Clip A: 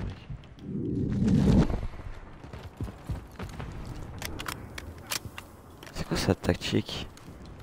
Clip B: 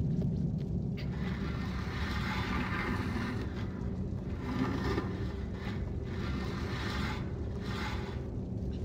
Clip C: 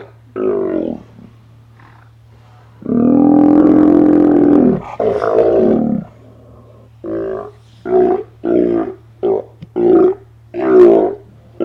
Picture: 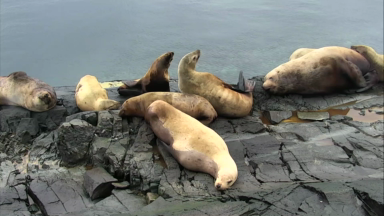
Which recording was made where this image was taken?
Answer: C